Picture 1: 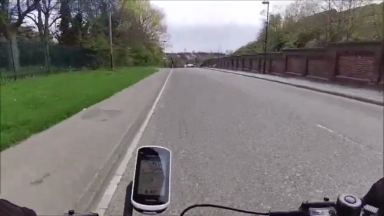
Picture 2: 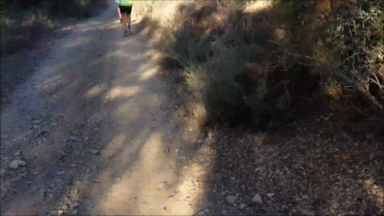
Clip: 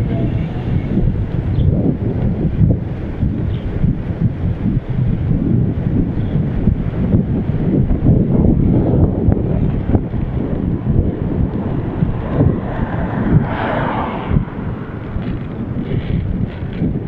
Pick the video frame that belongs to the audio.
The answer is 1